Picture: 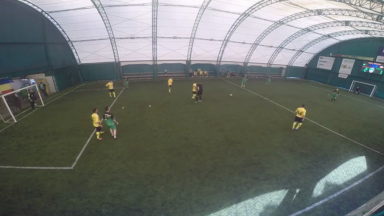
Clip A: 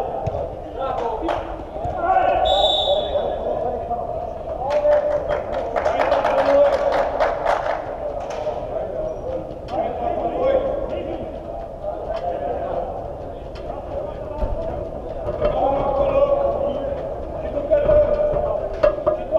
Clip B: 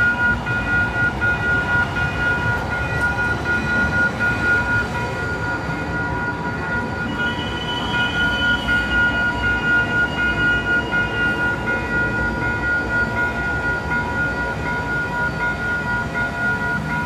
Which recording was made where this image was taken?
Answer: A